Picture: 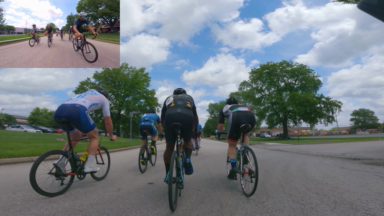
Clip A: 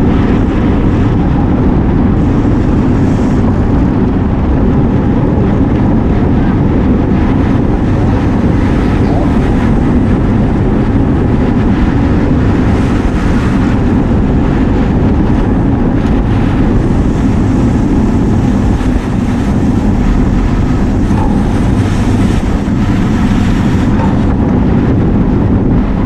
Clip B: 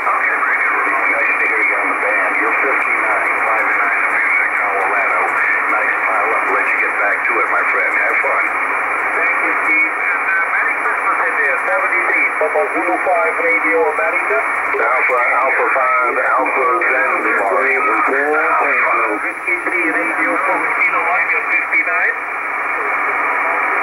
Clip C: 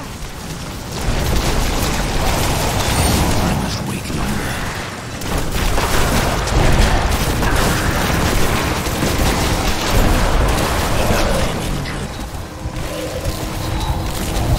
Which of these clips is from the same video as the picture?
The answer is A